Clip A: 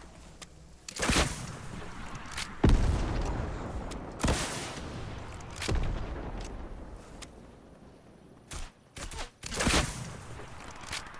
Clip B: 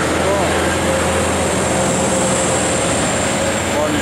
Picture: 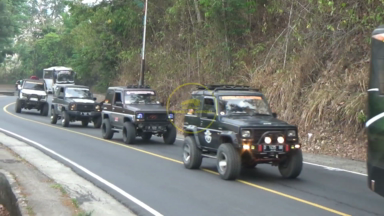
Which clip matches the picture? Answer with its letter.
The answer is B